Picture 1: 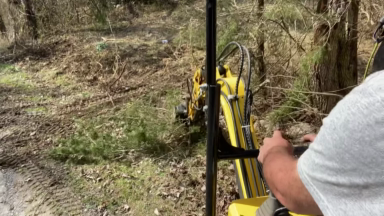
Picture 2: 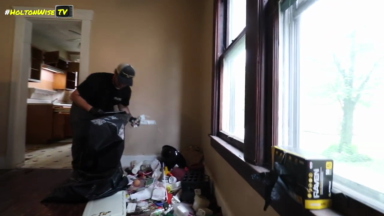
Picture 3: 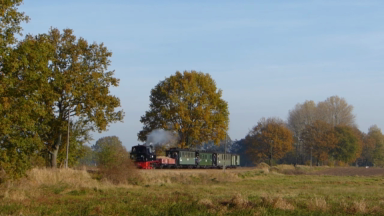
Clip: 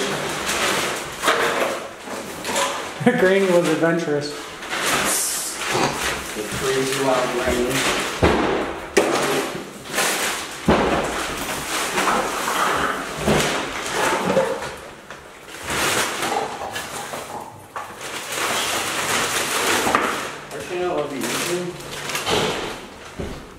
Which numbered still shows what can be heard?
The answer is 2